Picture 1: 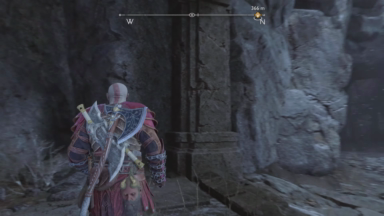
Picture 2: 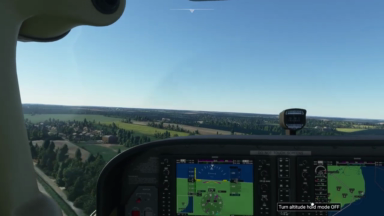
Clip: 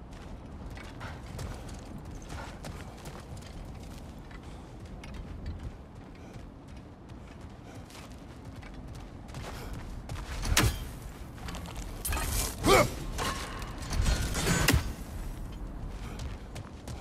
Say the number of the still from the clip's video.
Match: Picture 1